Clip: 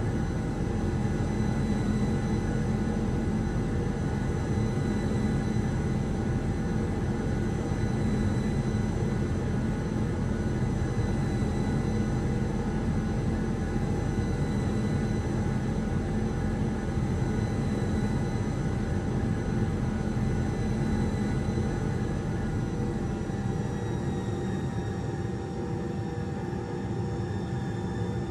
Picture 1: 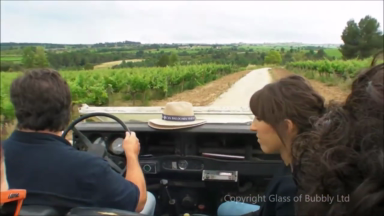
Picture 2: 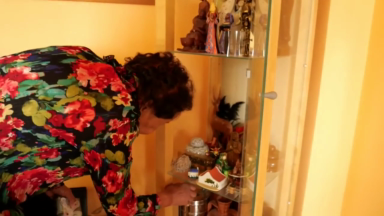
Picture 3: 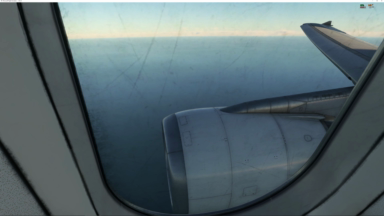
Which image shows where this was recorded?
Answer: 3